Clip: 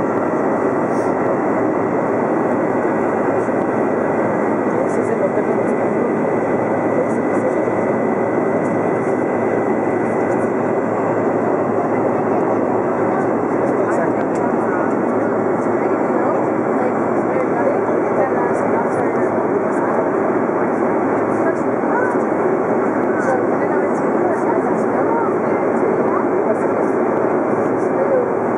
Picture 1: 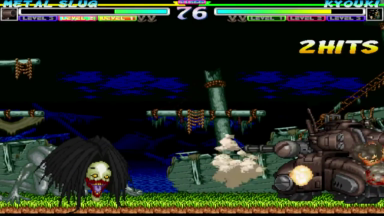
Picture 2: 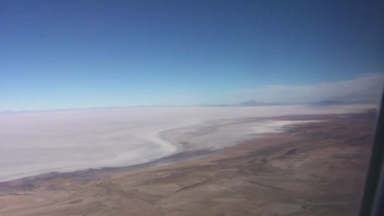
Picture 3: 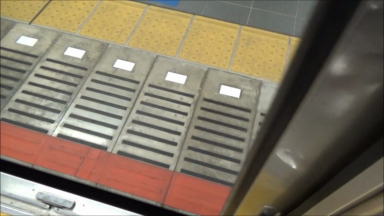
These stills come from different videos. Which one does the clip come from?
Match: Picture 2